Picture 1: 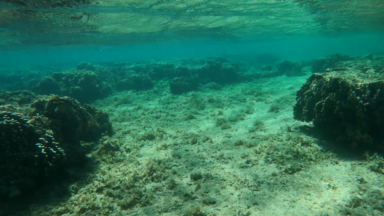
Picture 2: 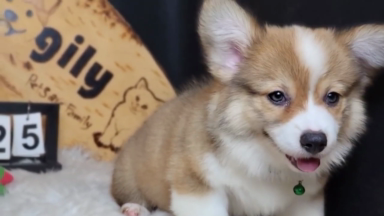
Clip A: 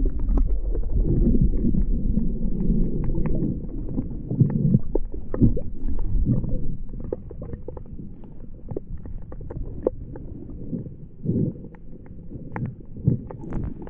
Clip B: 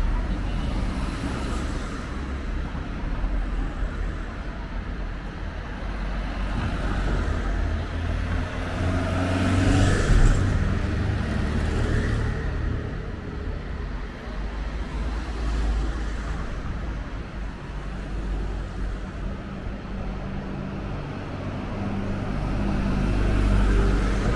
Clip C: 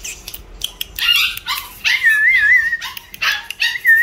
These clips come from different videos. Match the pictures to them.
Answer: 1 A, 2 C